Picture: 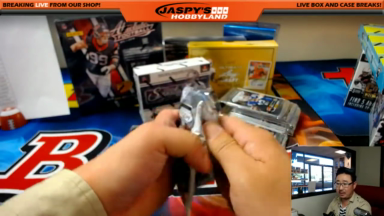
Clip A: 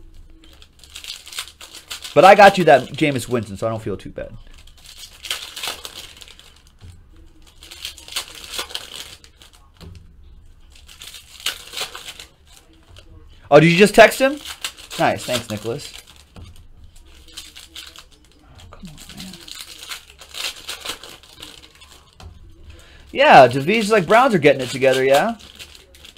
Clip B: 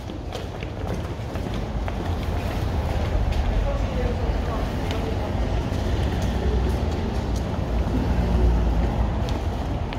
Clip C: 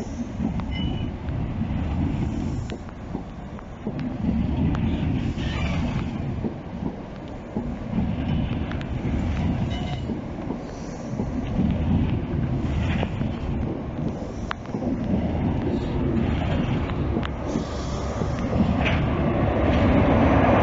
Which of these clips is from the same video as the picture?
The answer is A